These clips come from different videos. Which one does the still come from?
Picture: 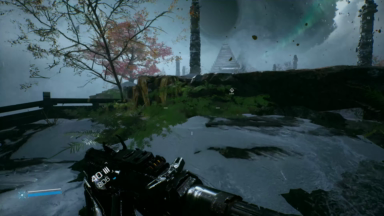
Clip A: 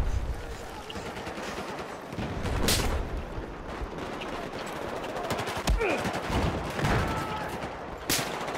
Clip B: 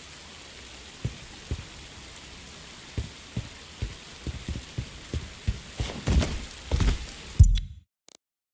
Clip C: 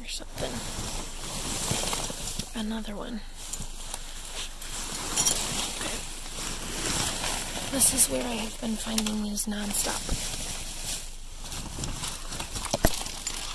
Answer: B